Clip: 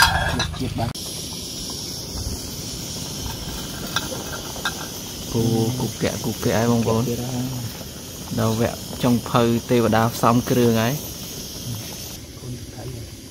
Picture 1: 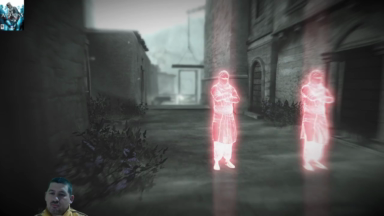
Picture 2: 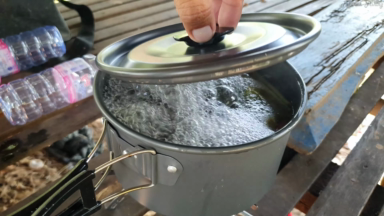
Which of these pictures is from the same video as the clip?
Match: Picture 2